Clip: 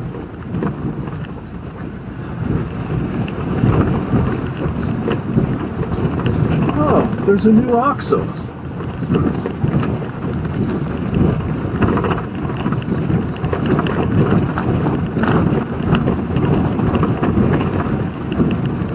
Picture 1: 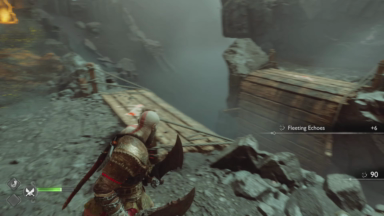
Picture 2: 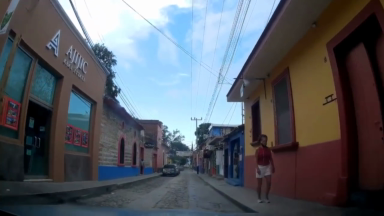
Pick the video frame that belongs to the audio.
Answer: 2